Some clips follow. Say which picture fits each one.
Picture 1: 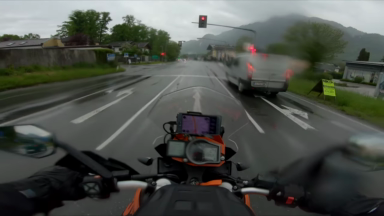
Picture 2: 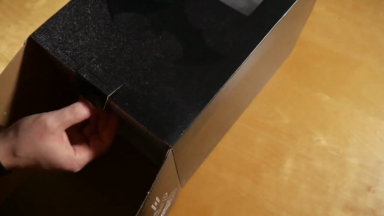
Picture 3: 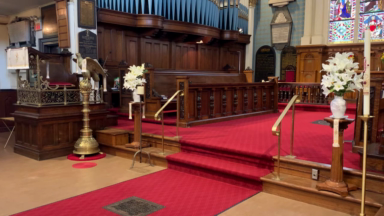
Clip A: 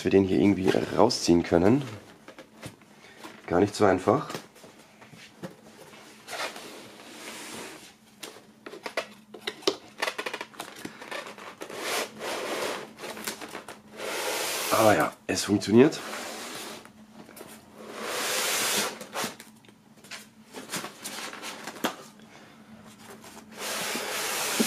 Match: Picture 2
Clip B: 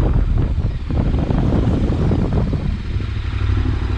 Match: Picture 1